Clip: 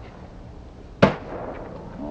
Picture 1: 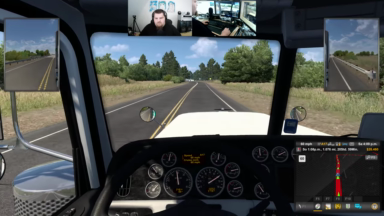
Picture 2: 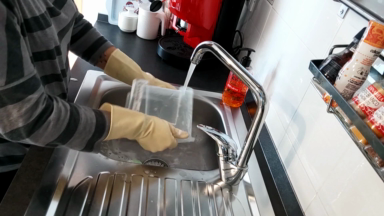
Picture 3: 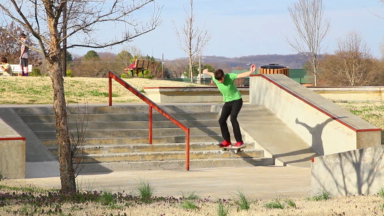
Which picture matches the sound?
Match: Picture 3